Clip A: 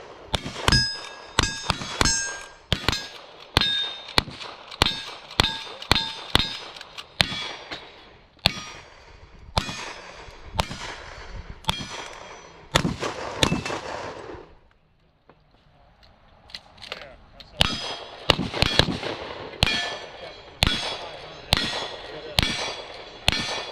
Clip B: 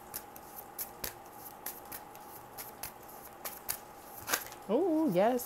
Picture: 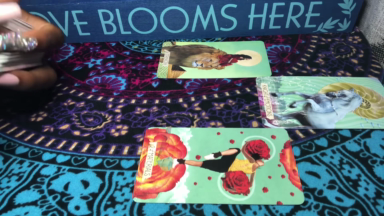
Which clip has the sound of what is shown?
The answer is B